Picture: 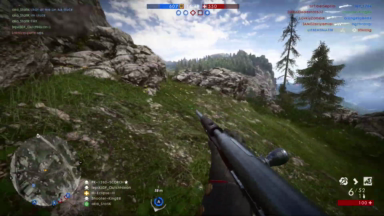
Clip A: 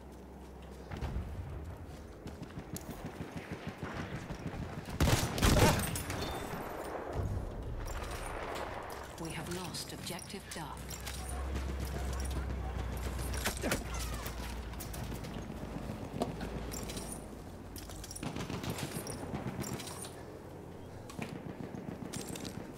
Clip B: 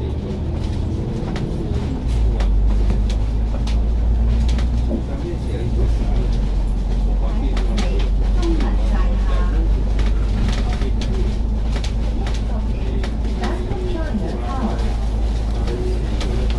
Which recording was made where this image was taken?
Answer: A